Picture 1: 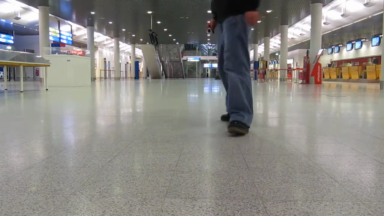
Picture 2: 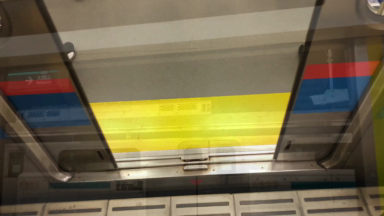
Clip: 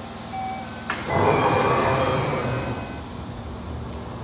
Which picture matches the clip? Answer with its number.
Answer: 2